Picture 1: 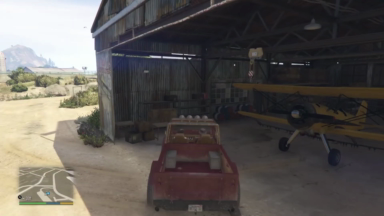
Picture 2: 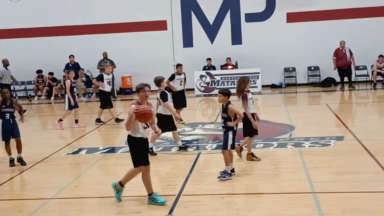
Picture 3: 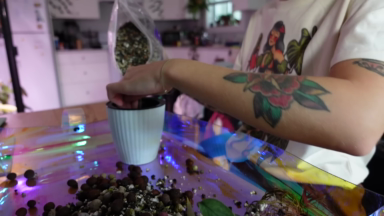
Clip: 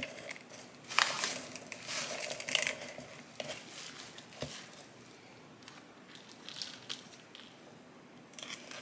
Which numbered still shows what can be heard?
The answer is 3